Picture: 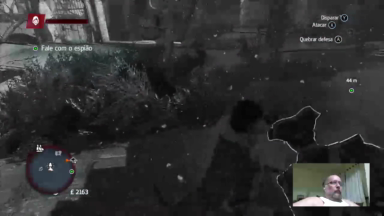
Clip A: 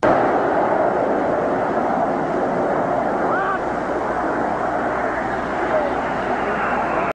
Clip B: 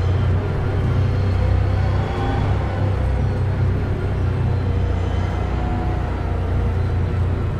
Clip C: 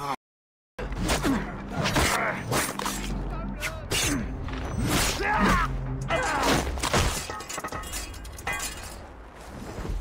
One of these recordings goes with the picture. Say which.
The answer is C